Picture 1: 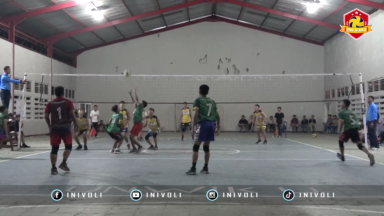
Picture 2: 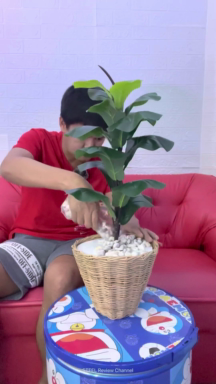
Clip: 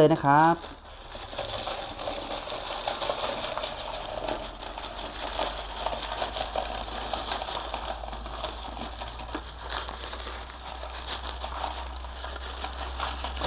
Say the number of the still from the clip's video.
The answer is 2